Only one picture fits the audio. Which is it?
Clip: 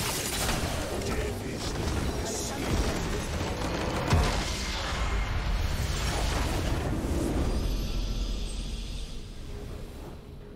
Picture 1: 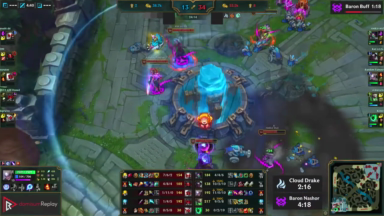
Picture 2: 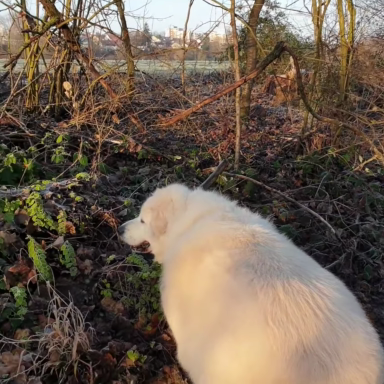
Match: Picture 1